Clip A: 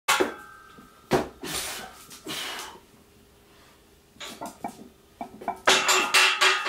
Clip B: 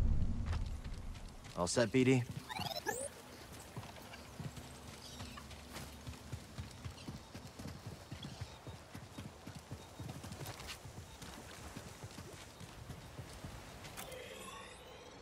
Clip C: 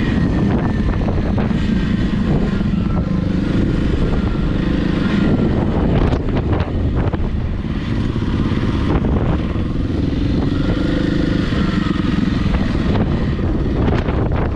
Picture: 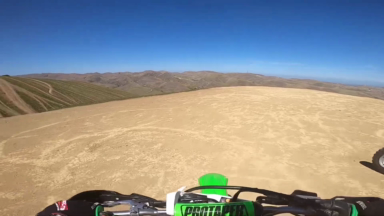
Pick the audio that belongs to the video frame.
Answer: C